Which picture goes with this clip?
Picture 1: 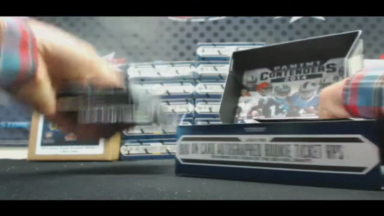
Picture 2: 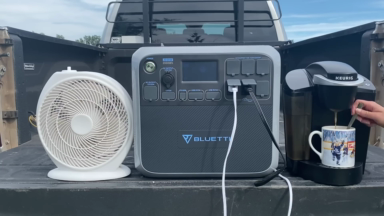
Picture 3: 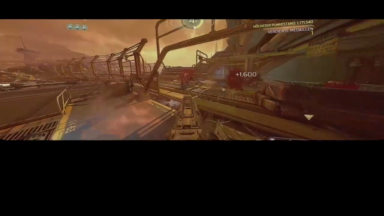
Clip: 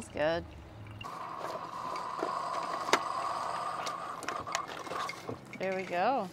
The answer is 2